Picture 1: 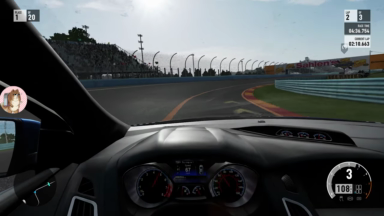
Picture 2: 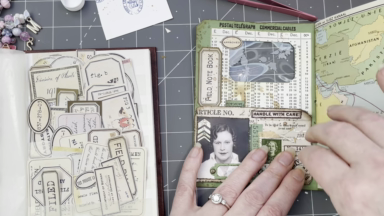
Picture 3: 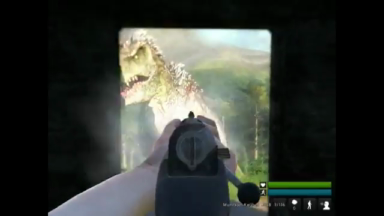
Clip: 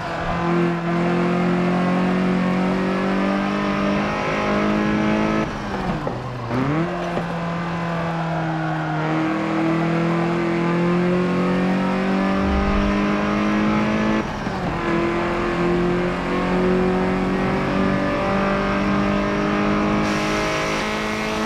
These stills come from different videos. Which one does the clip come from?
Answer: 1